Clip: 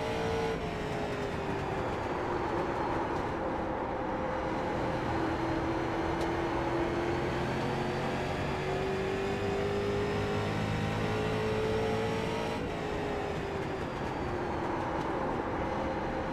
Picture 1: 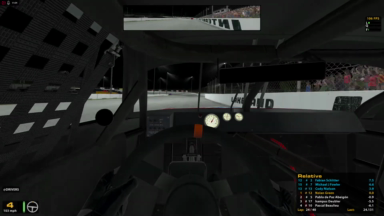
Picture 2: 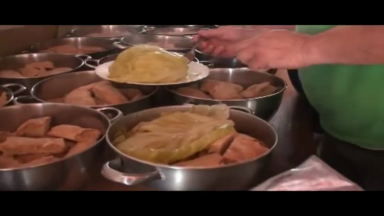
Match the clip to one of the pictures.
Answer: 1